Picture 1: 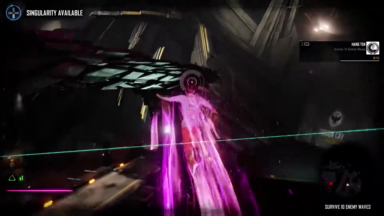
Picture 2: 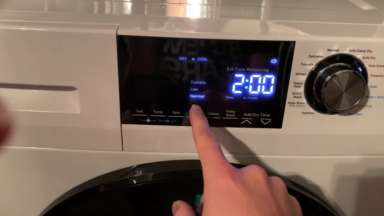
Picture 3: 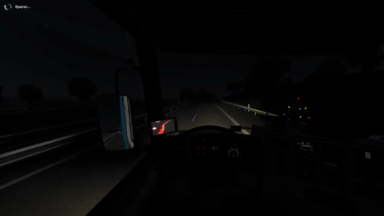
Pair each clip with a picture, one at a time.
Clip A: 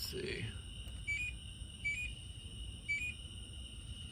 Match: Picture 2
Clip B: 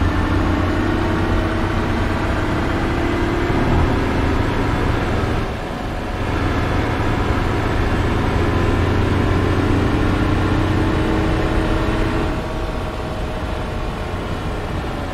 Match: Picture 3